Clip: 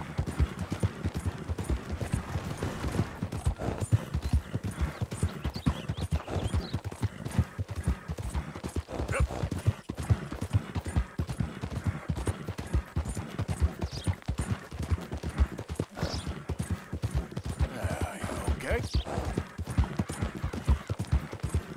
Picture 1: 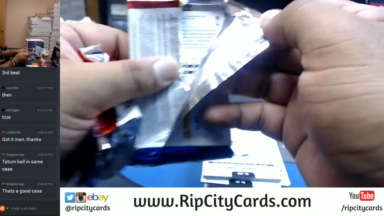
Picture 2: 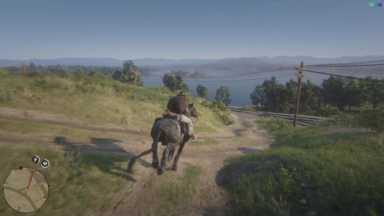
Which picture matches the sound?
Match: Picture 2